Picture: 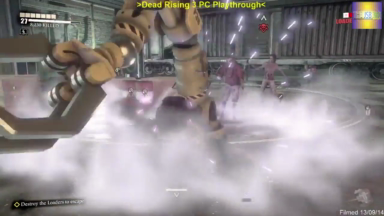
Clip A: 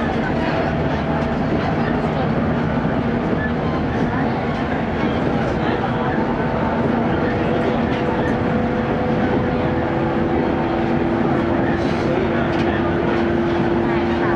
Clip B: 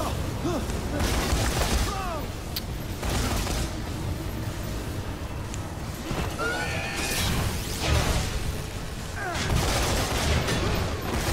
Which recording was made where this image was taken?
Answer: B